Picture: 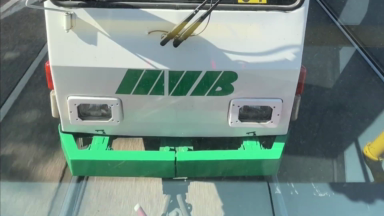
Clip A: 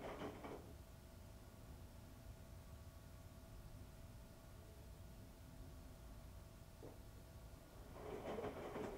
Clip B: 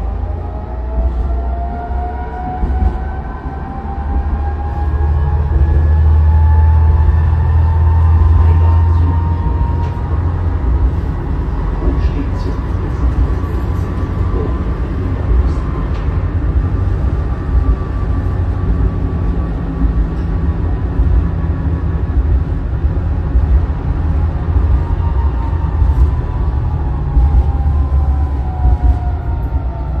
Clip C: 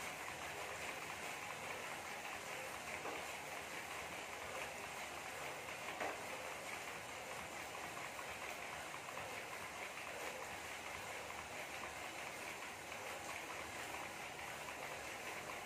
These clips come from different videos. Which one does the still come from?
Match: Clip B